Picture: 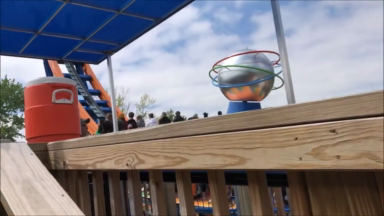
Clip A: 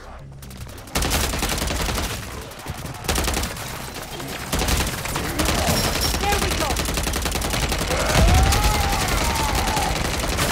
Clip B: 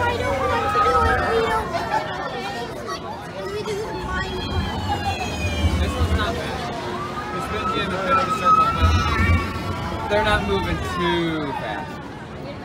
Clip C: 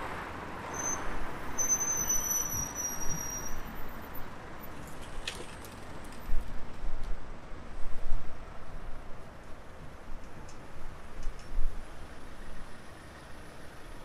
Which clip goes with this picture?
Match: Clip B